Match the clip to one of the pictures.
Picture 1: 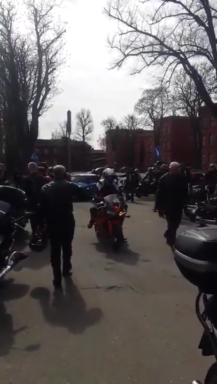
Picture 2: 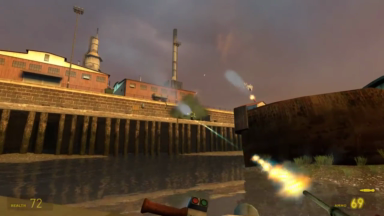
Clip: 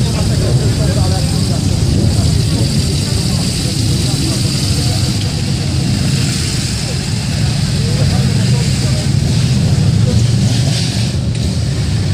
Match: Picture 1